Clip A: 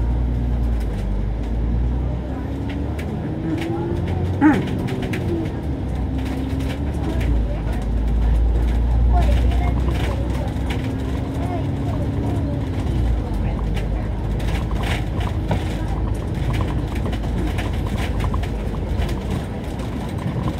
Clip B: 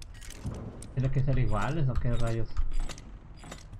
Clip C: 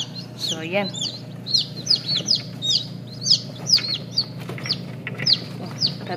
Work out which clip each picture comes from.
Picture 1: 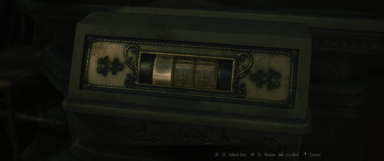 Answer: B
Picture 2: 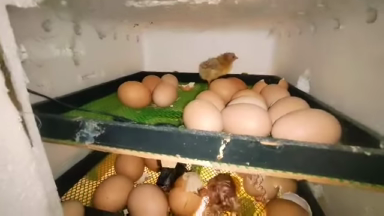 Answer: C